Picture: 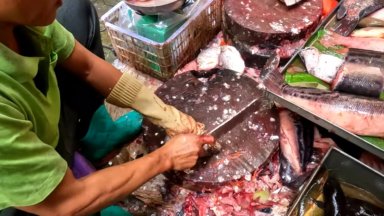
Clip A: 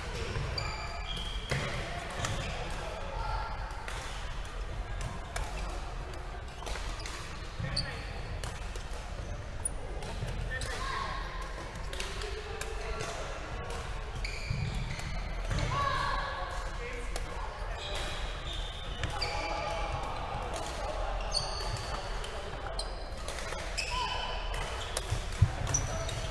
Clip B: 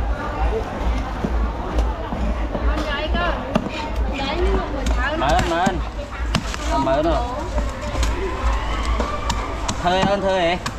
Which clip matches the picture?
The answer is B